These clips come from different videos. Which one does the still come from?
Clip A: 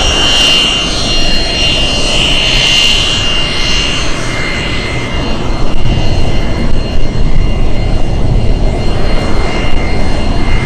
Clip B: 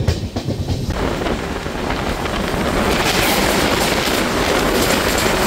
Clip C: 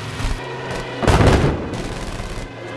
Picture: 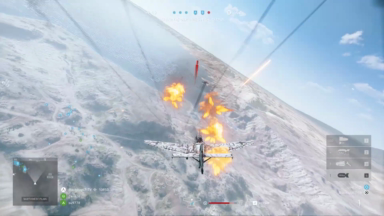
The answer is C